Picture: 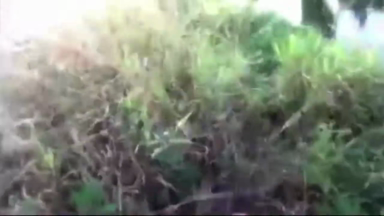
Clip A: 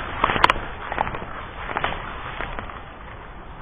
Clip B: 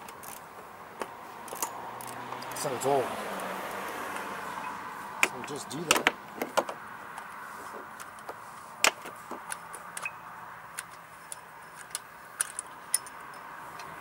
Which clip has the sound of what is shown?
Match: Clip A